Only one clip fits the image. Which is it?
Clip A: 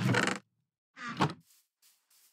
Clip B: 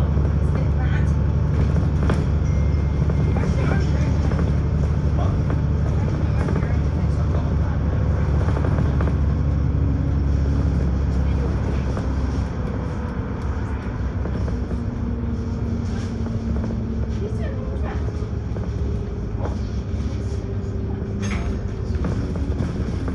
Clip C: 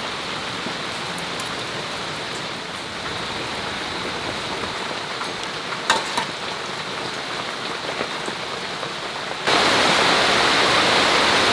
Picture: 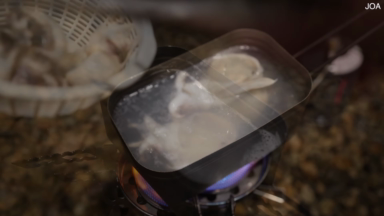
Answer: C